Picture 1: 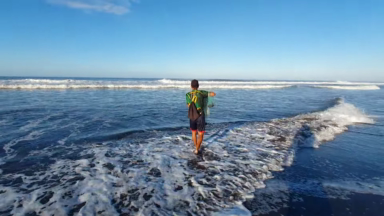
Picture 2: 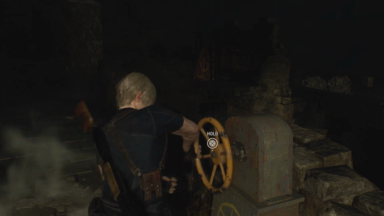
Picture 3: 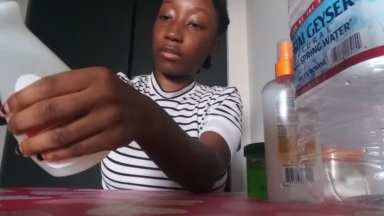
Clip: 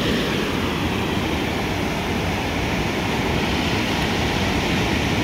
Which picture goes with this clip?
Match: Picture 1